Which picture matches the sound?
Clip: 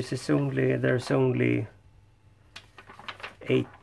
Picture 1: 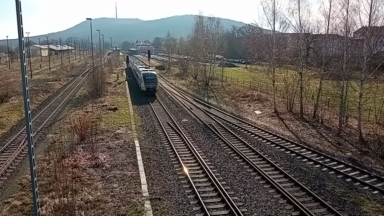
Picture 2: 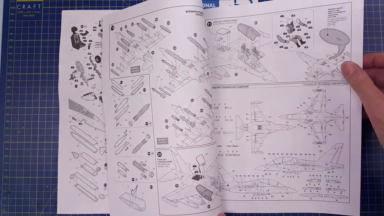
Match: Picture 2